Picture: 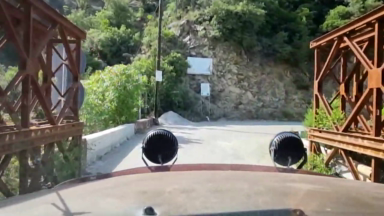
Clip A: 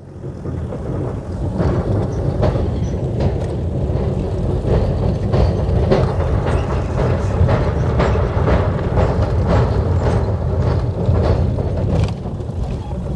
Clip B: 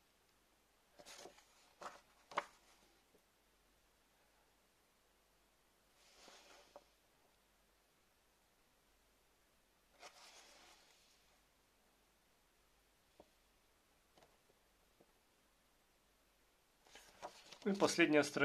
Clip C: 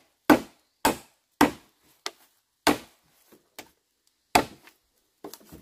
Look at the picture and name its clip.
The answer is A